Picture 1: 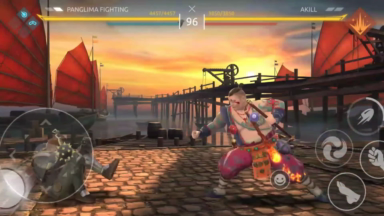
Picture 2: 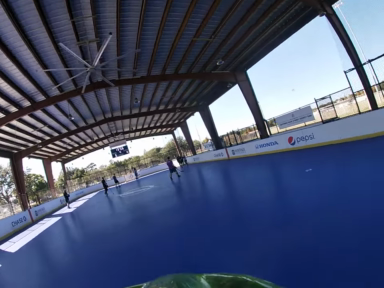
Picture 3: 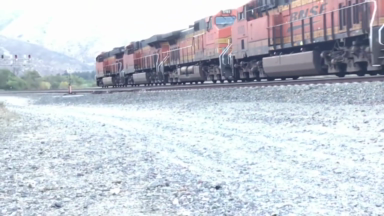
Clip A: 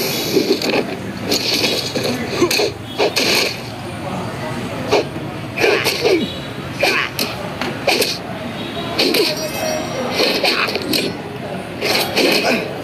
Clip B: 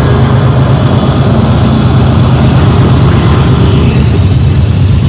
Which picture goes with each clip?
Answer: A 1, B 3